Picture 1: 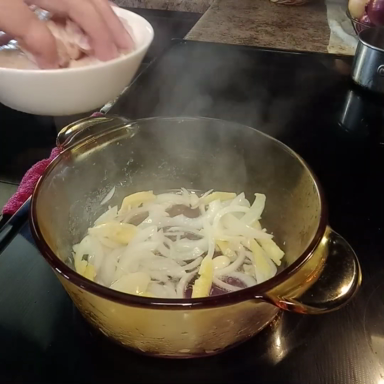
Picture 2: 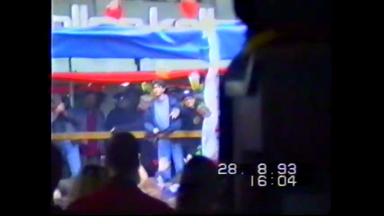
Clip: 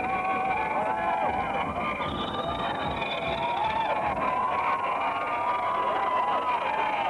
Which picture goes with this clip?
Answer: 2